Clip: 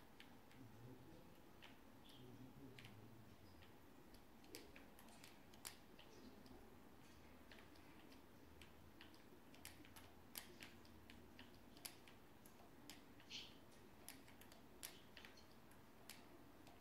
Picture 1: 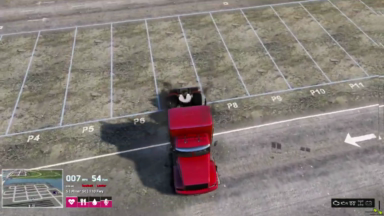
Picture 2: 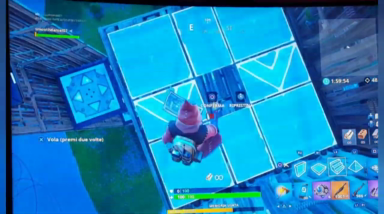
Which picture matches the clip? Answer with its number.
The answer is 2